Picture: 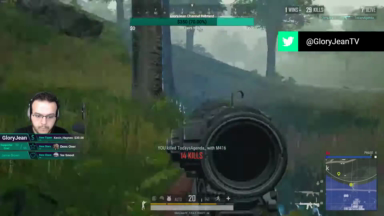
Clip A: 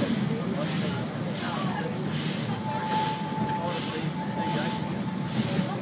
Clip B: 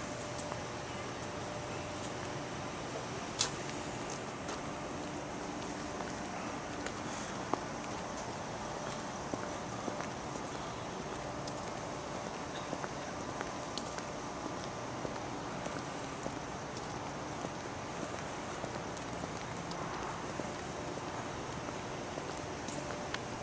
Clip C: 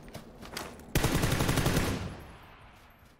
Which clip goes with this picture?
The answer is C